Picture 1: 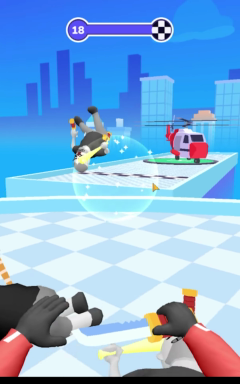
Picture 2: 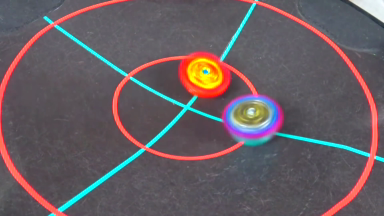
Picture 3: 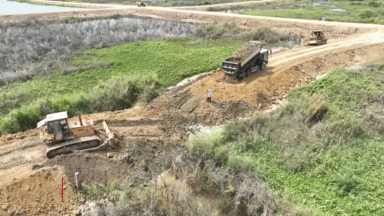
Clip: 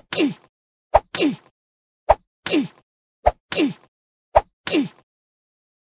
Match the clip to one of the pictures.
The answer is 1